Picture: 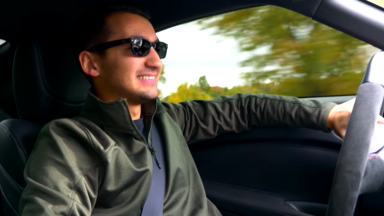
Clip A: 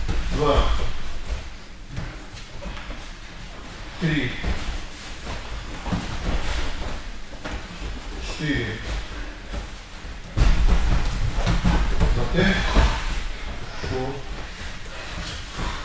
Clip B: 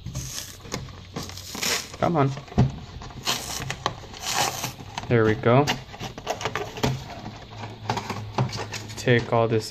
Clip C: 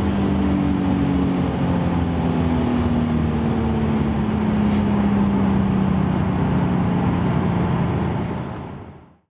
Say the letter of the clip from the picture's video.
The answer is C